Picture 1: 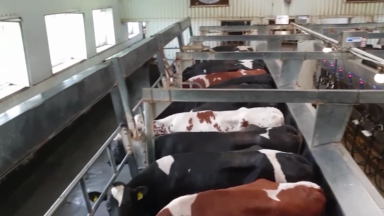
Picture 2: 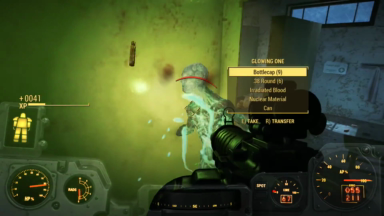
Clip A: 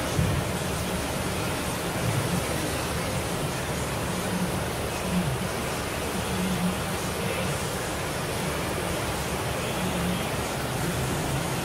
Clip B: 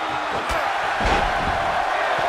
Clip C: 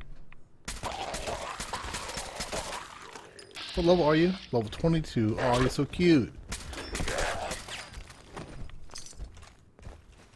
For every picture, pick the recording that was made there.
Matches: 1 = A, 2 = C